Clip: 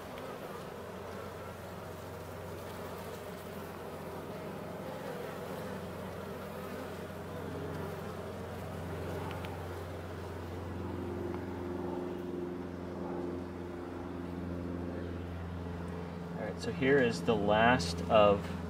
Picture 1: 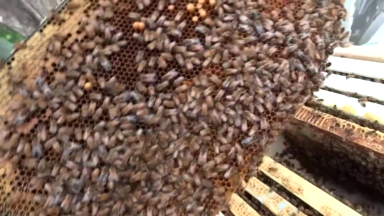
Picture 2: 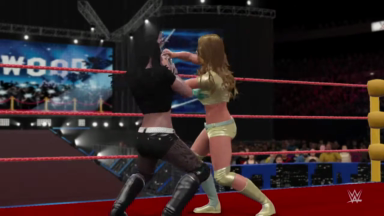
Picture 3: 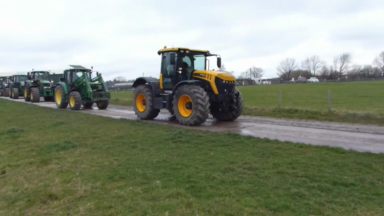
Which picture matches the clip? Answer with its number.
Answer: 1